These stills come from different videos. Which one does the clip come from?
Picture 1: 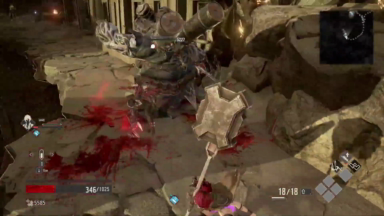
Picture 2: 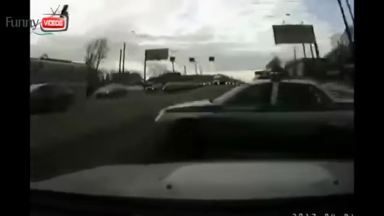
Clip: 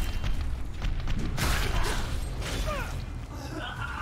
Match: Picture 1